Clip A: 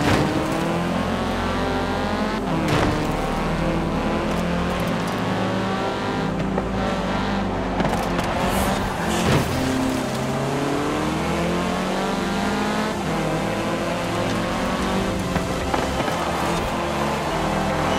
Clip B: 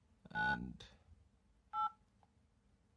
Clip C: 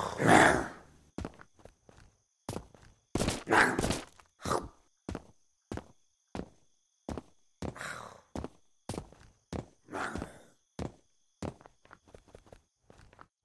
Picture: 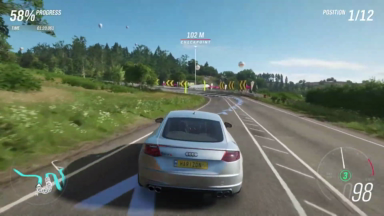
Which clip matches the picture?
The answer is A